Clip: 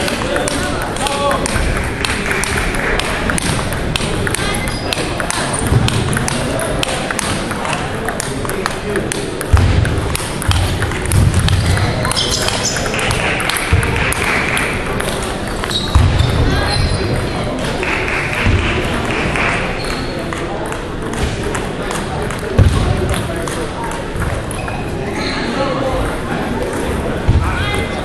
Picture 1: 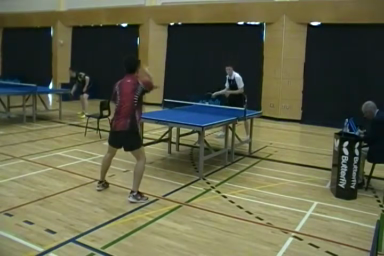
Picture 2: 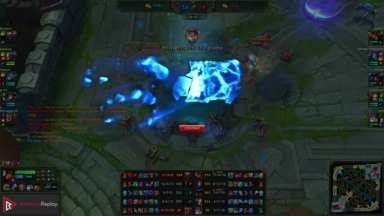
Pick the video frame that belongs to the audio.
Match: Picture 1